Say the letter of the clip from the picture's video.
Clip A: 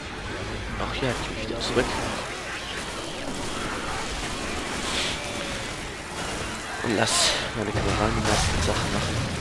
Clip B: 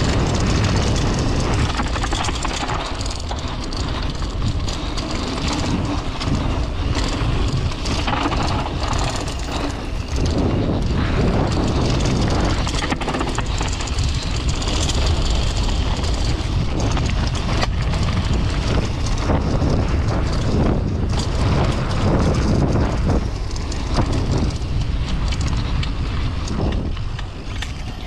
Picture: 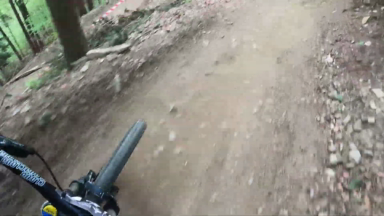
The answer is B